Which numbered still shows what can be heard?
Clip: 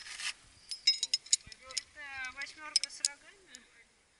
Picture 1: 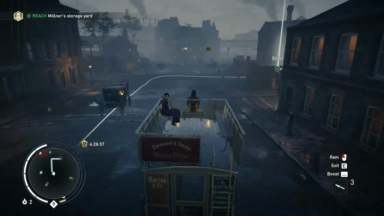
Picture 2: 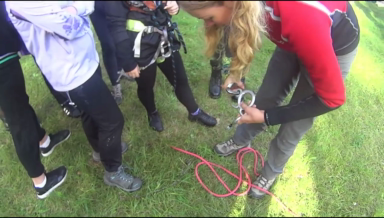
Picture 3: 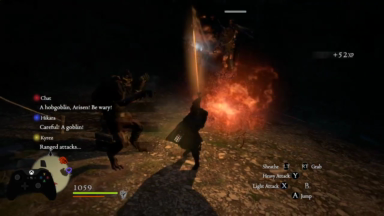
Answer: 2